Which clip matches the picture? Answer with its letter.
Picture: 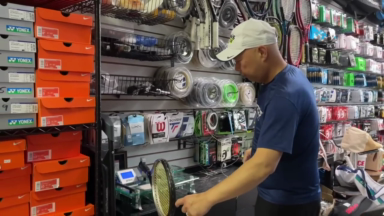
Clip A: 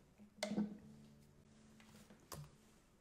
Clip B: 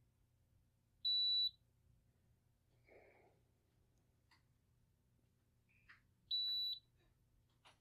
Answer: B